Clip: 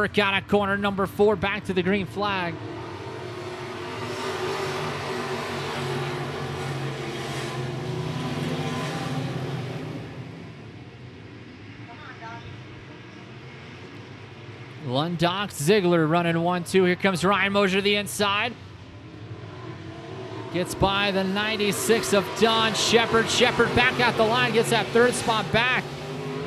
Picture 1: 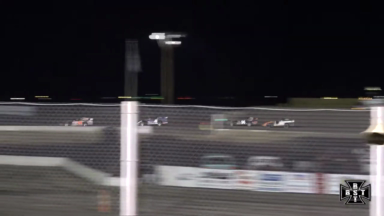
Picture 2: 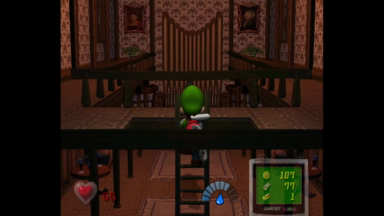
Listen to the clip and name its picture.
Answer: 1